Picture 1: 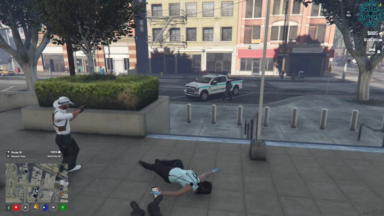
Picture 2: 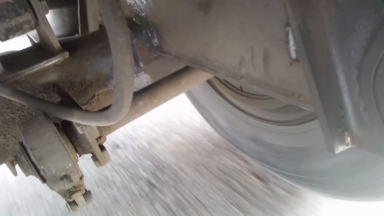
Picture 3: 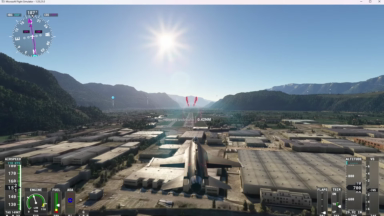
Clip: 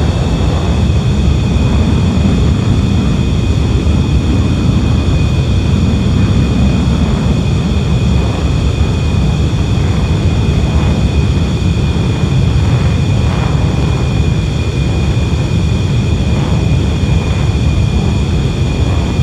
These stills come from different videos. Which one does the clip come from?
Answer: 3